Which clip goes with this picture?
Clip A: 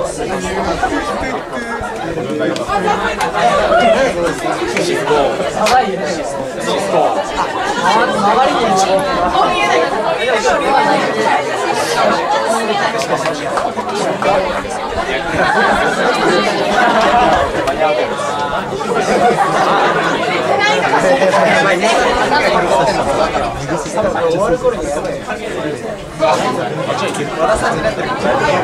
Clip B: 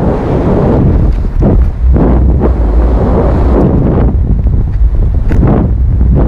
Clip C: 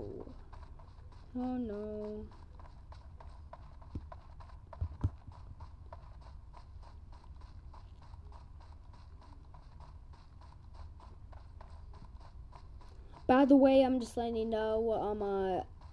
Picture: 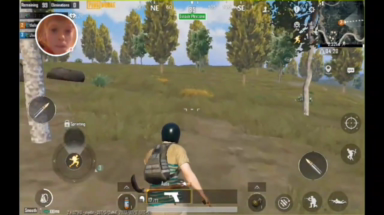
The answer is C